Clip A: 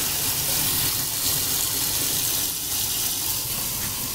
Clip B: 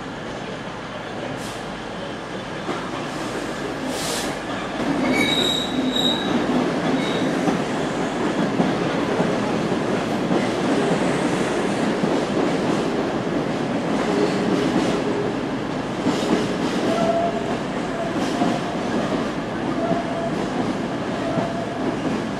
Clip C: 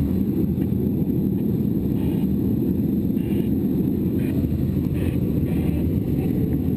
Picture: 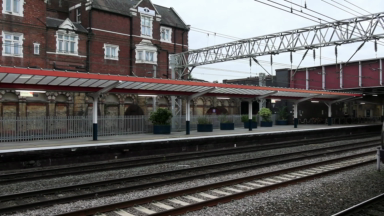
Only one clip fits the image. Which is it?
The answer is B